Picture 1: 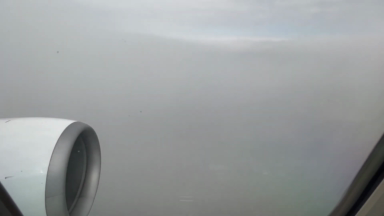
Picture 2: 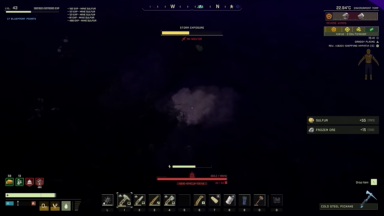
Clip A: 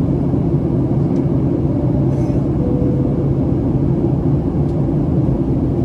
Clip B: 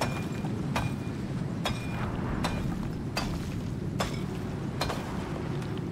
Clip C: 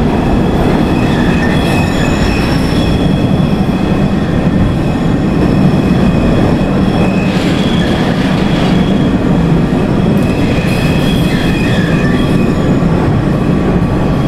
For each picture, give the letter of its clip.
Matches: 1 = A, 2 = B